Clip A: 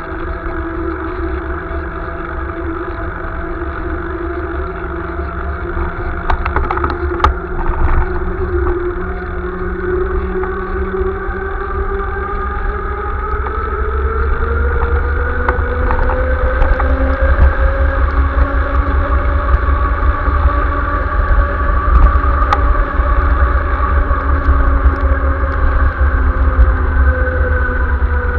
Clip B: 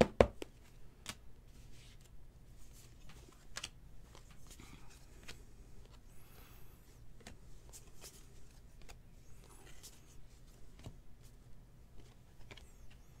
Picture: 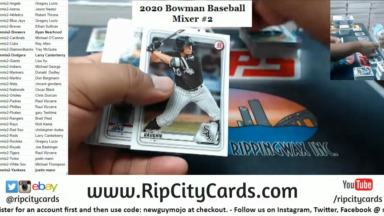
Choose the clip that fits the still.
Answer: B